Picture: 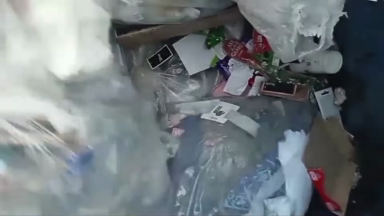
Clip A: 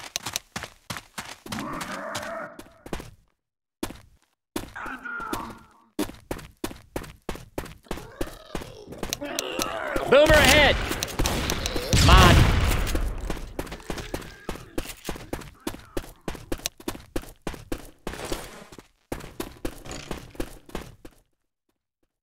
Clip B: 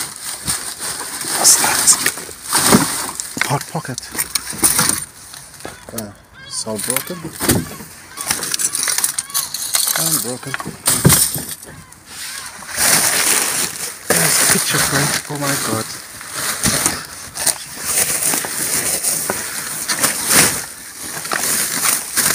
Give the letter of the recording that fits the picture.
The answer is B